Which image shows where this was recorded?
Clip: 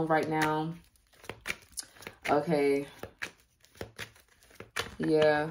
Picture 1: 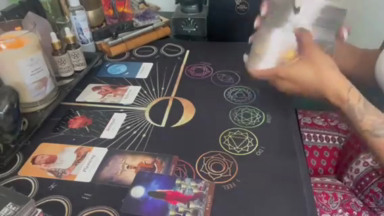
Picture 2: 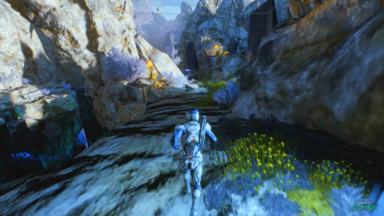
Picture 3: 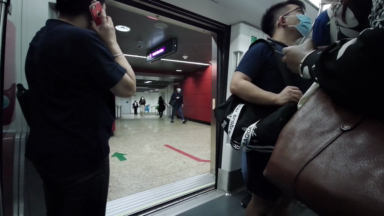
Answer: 1